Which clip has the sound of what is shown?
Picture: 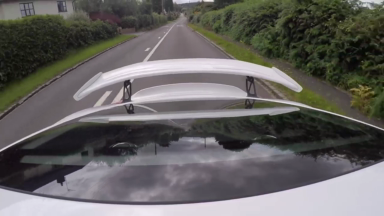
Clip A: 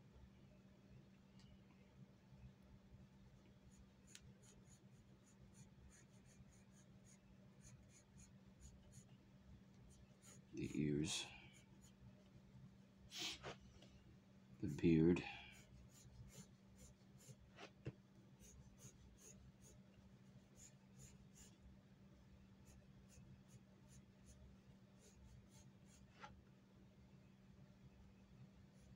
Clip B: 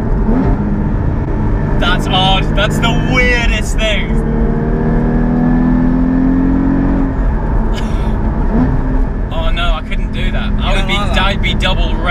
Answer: B